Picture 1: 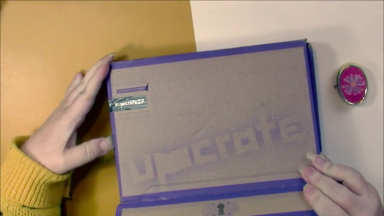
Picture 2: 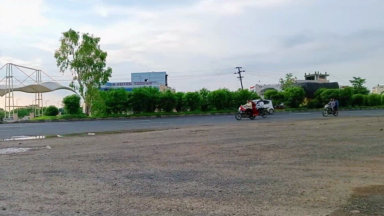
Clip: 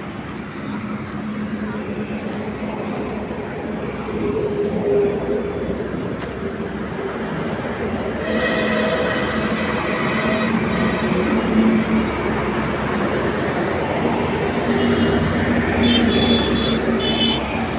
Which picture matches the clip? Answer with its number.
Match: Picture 2